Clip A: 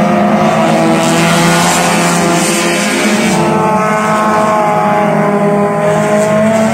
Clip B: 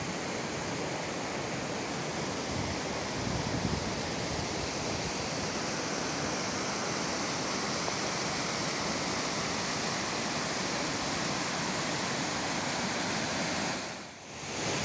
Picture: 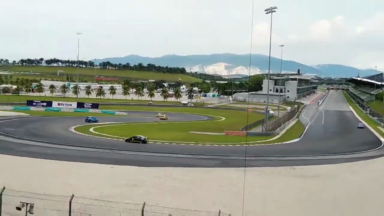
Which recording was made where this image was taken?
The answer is A